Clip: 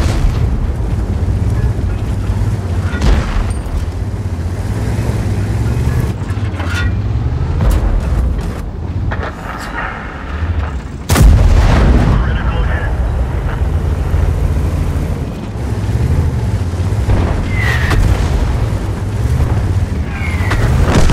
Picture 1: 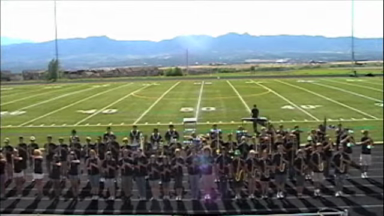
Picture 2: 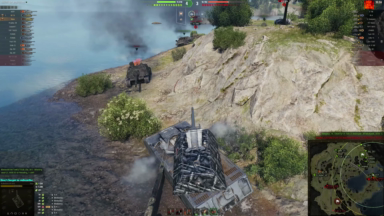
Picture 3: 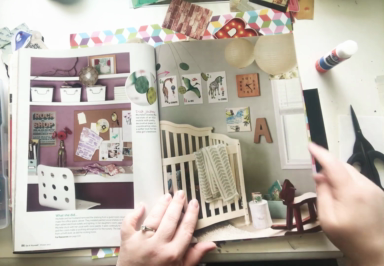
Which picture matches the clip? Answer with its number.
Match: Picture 2